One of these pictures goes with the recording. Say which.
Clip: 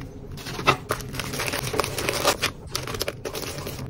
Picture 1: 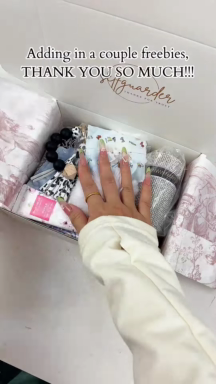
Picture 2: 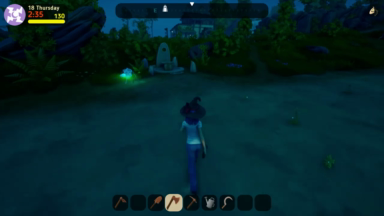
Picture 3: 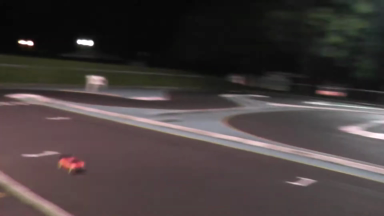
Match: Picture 1